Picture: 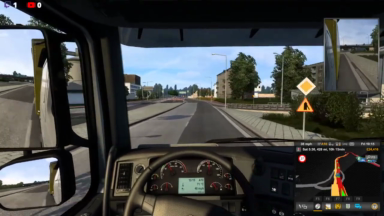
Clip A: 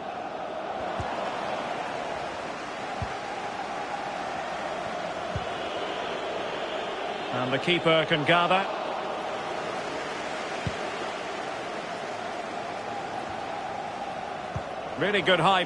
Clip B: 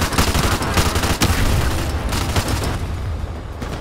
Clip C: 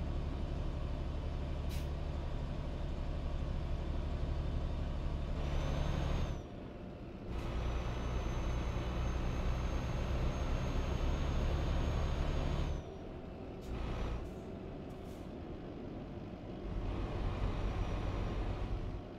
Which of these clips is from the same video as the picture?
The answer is C